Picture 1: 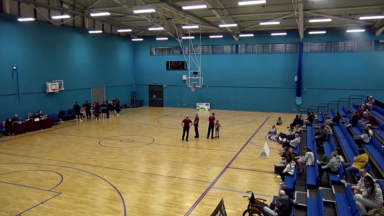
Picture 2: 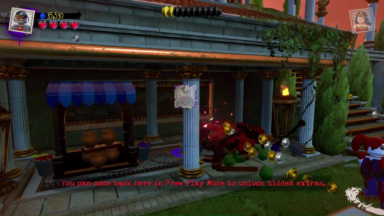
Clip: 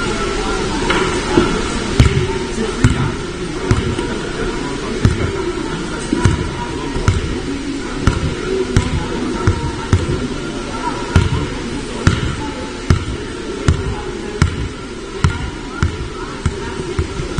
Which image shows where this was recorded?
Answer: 1